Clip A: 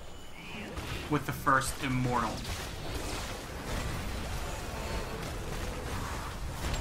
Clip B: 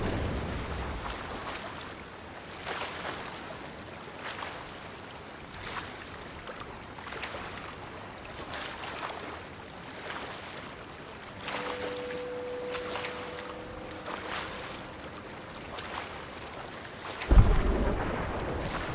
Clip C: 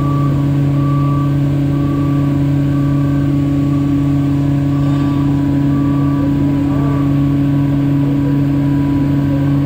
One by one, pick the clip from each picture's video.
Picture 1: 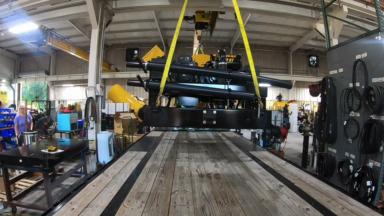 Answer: C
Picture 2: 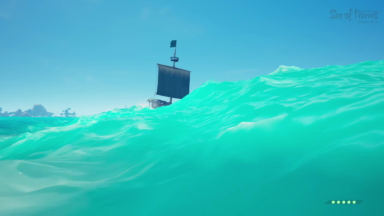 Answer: B